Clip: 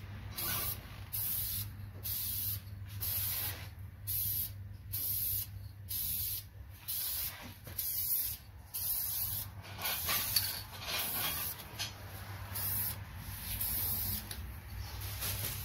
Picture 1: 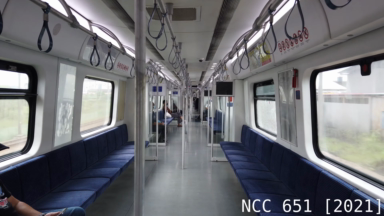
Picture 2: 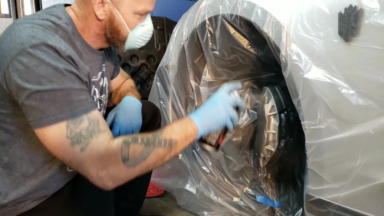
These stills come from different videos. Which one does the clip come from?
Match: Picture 2